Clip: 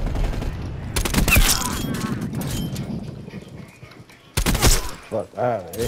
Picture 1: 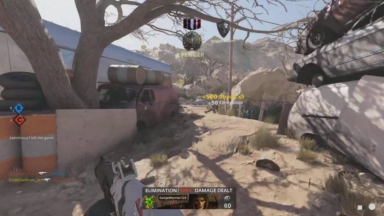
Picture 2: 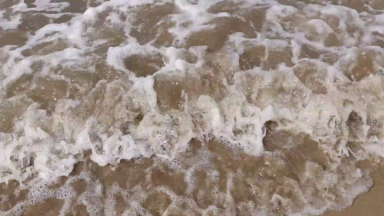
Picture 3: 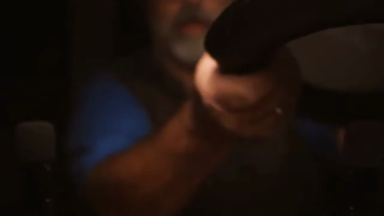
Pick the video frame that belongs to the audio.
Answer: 1